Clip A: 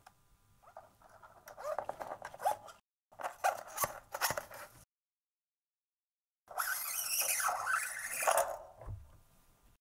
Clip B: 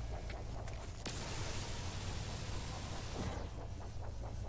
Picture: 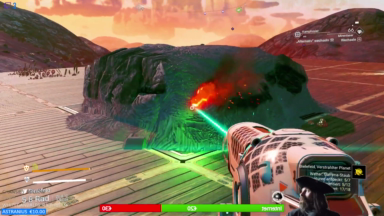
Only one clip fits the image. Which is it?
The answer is B